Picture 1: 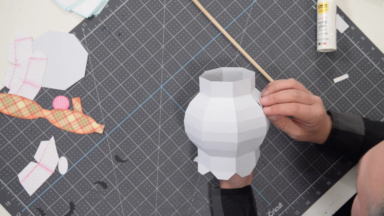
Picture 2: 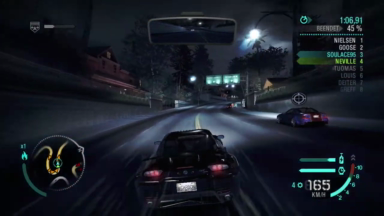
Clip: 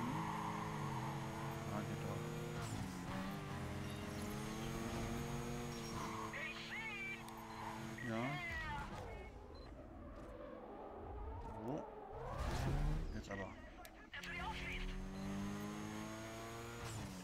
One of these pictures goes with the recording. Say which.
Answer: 2